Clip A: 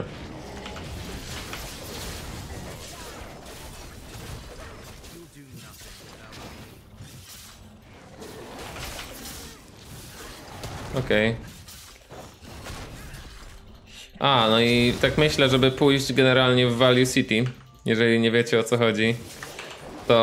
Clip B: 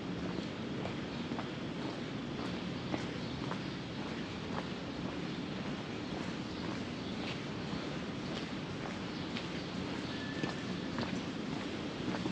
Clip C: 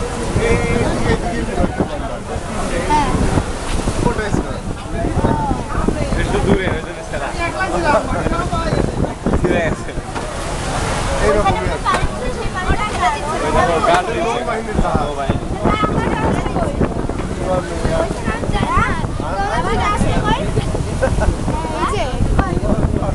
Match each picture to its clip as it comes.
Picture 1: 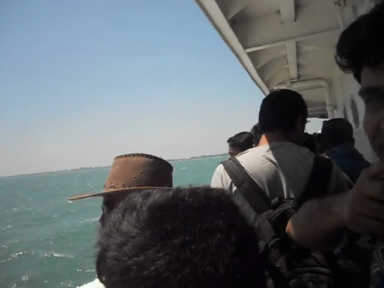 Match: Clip C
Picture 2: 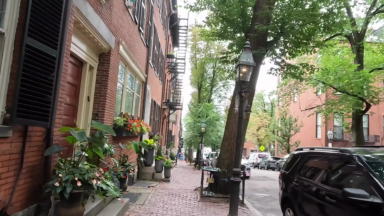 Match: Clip B